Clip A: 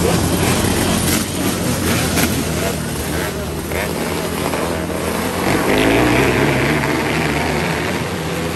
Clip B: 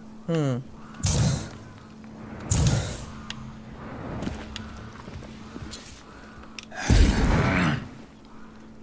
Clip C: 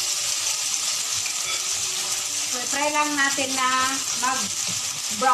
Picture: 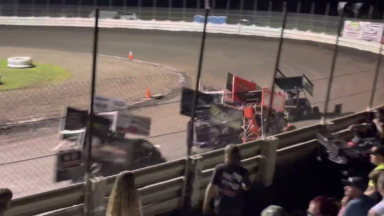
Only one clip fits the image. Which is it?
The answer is A